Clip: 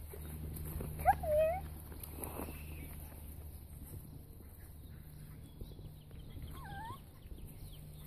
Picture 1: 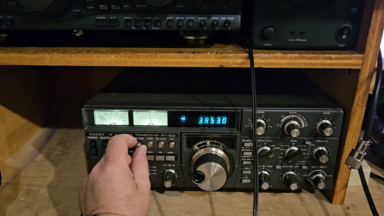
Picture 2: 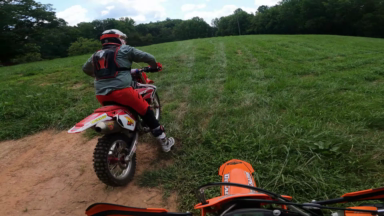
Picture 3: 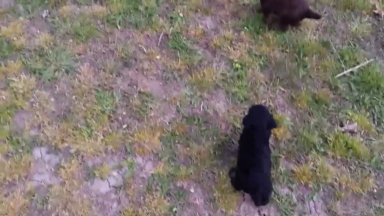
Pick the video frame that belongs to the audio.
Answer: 3